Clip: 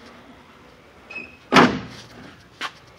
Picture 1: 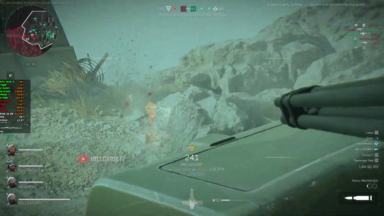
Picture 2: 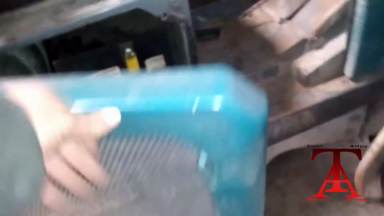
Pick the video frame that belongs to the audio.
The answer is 2